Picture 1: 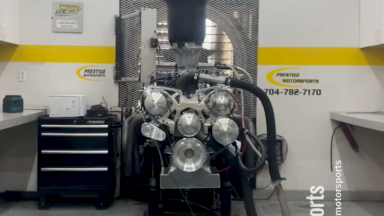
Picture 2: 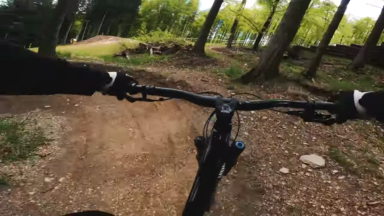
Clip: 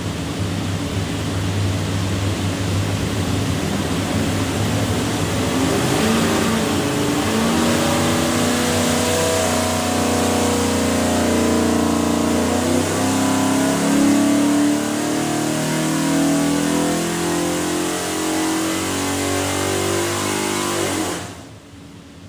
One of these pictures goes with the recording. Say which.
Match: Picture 1